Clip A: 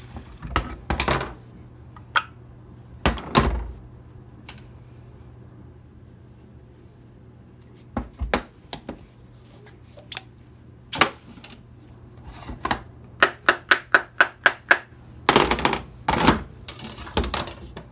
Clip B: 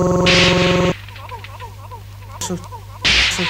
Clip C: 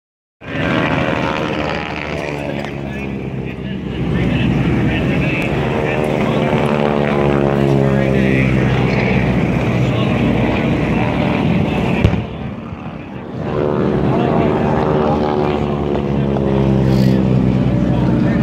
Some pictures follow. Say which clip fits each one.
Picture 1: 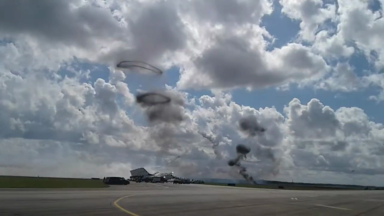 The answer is C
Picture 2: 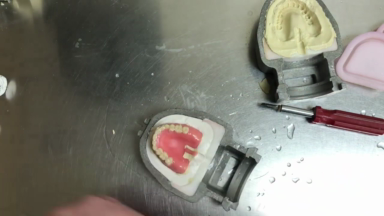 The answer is A